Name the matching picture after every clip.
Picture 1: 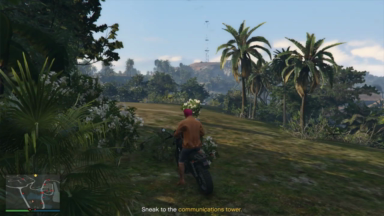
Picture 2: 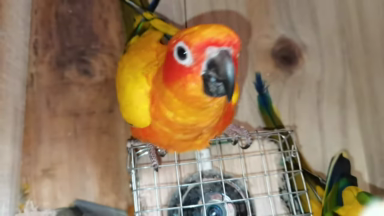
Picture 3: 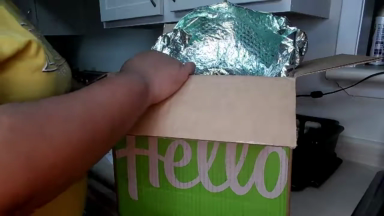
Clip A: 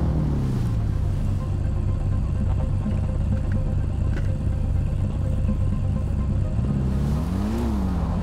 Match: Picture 1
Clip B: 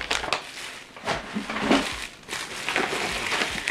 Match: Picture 3